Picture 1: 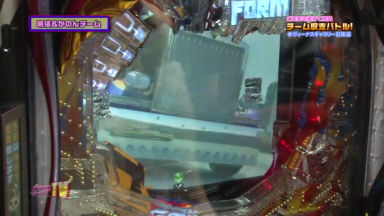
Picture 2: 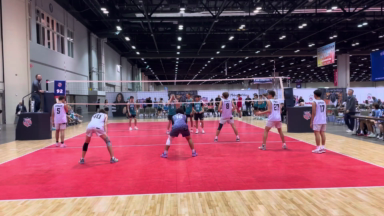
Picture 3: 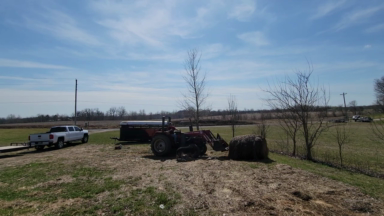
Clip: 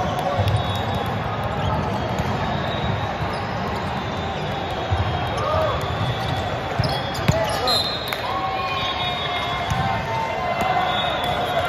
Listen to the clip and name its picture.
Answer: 2